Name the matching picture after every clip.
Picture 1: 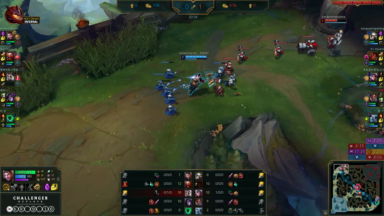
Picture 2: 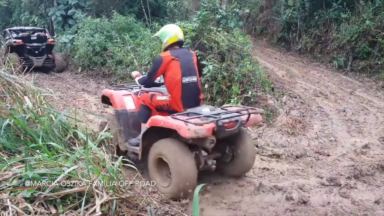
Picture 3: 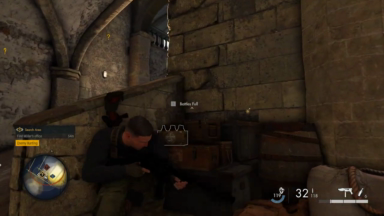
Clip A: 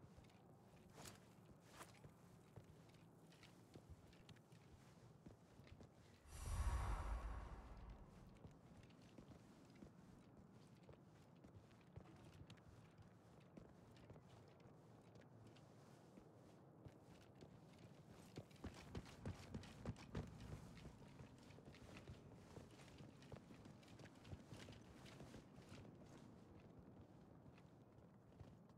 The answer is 3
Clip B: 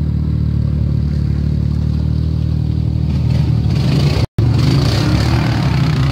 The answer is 2